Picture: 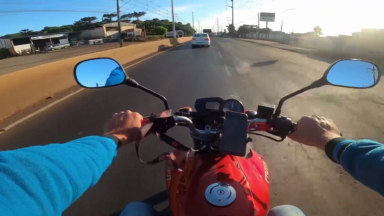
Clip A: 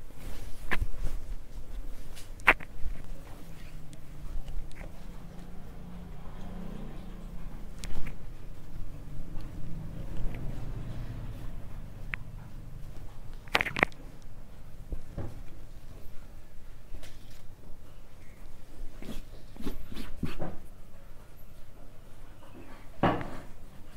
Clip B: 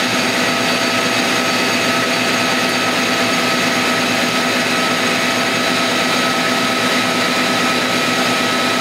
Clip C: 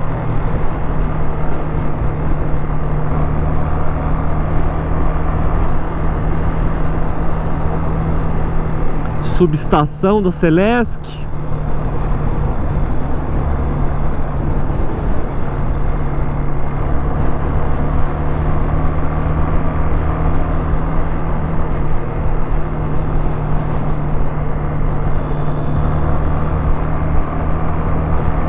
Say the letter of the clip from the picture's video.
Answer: C